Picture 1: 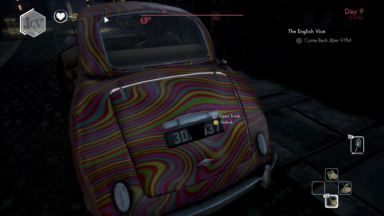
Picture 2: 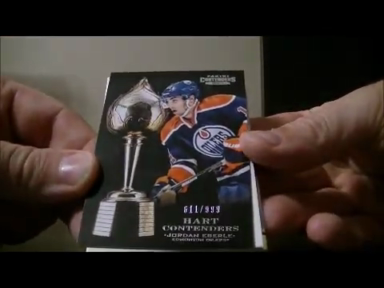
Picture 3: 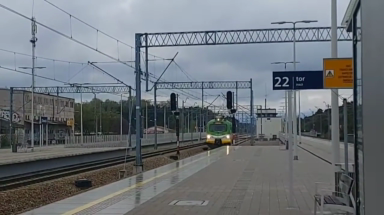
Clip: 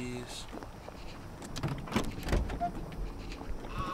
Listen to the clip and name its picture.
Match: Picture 1